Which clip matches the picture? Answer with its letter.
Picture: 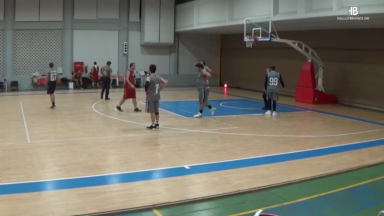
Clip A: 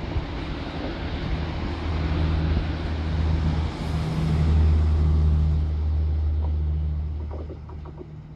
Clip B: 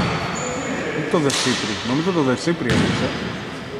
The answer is B